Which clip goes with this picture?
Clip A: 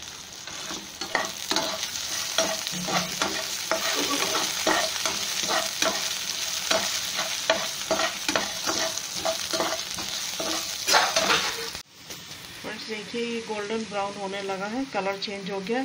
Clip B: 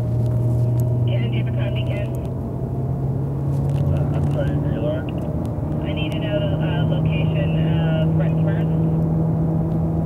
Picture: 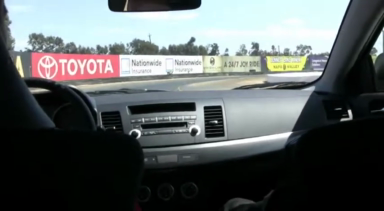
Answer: B